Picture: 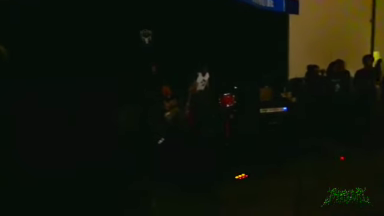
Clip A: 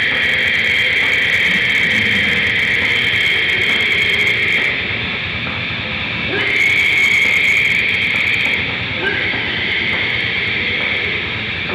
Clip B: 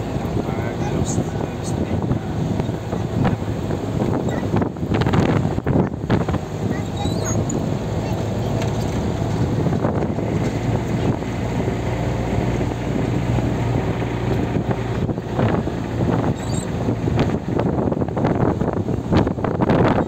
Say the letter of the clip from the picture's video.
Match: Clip A